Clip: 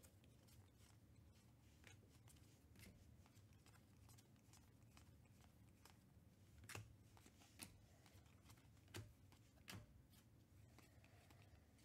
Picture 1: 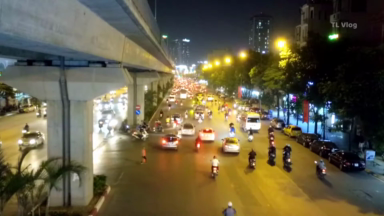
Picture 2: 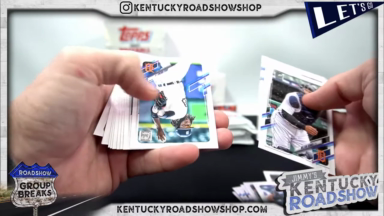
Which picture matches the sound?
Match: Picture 2